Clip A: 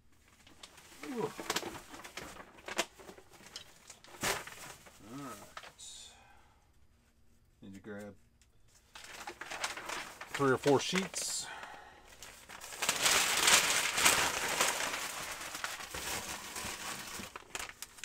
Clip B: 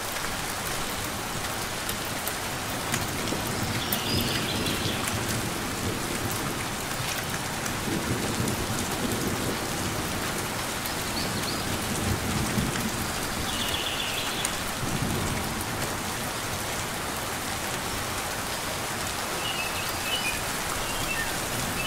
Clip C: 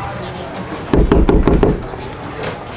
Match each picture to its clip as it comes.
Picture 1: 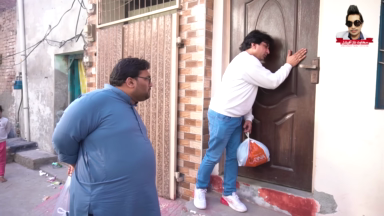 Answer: C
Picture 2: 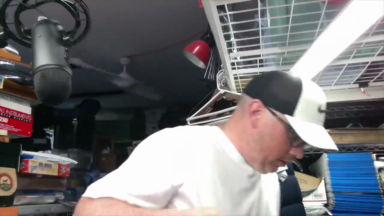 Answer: A